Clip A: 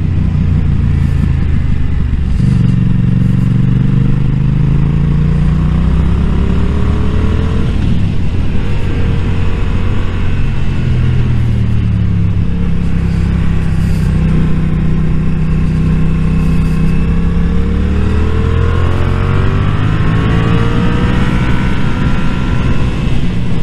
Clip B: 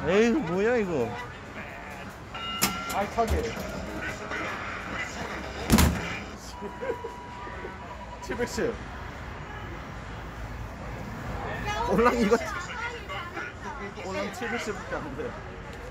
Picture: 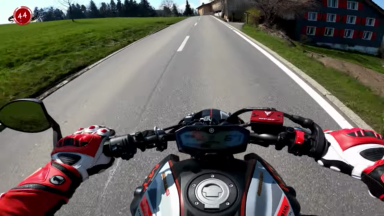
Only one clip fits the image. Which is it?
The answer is A